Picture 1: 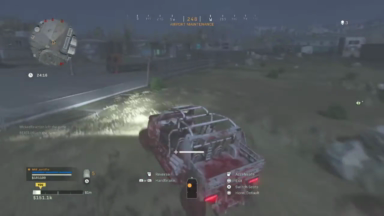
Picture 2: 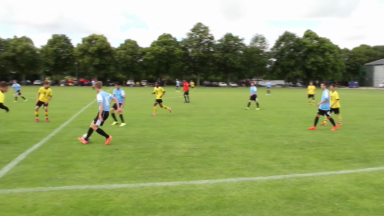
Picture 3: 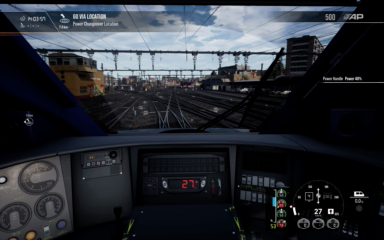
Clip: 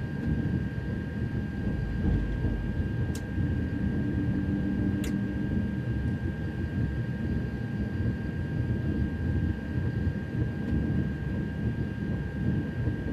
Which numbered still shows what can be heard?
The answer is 3